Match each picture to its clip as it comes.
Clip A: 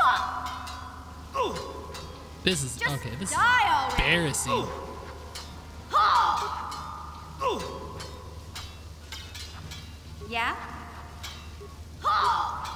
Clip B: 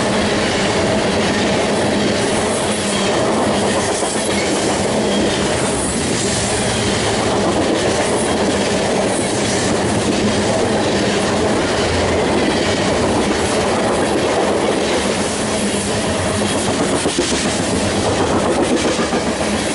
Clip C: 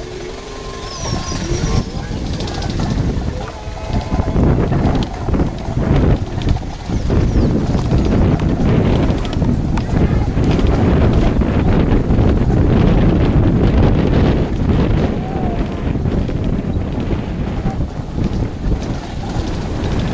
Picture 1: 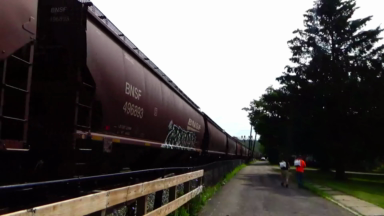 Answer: B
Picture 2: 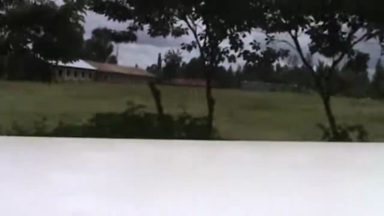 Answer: C